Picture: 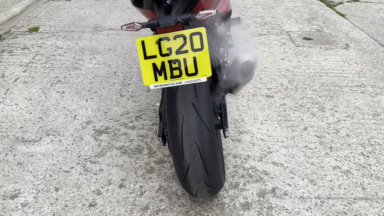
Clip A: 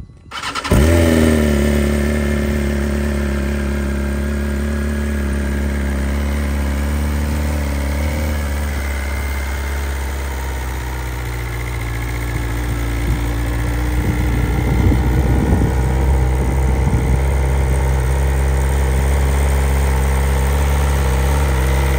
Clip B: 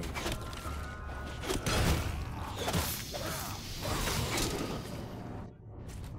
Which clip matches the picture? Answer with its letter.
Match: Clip A